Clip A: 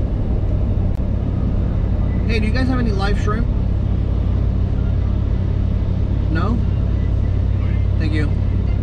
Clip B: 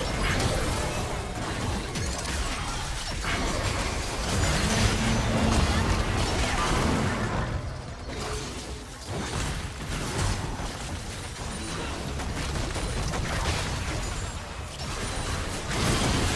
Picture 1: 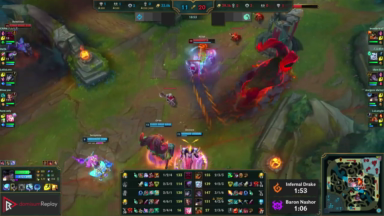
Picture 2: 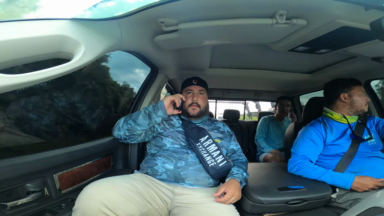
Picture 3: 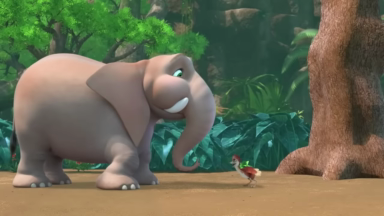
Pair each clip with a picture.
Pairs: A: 2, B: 1